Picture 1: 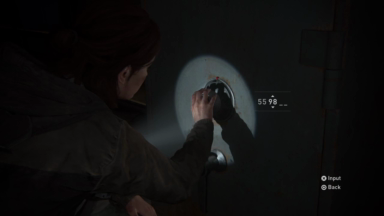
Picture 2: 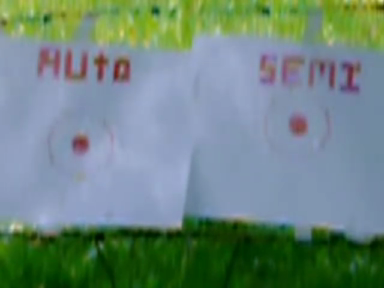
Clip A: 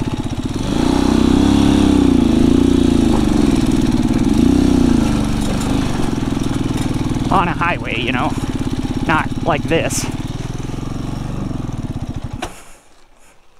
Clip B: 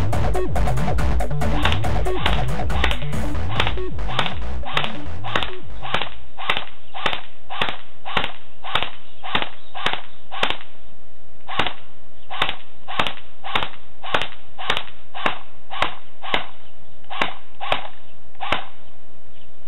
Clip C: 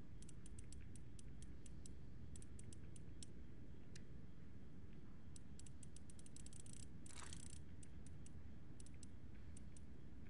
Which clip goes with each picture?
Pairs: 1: C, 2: B